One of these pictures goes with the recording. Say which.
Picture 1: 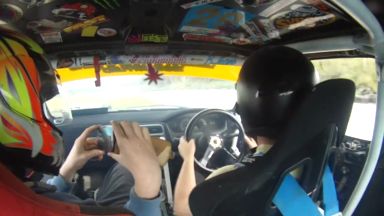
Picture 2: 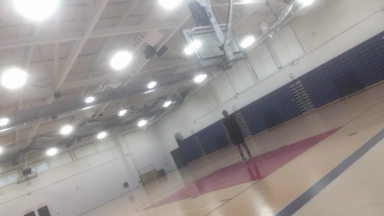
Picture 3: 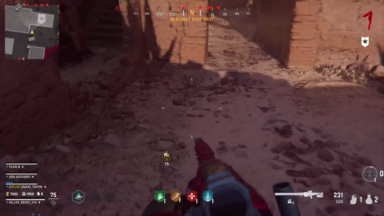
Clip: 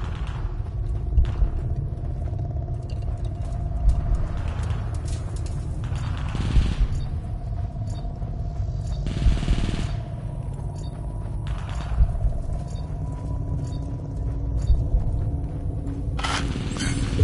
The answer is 3